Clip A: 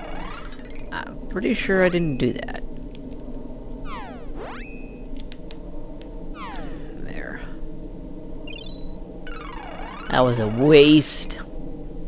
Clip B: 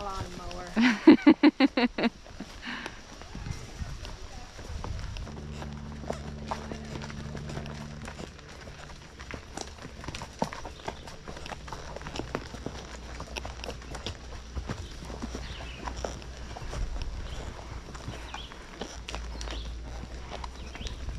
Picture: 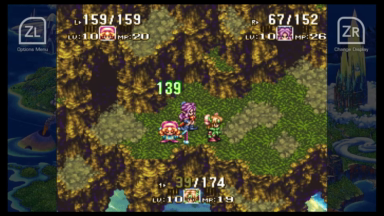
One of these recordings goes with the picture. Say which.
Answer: A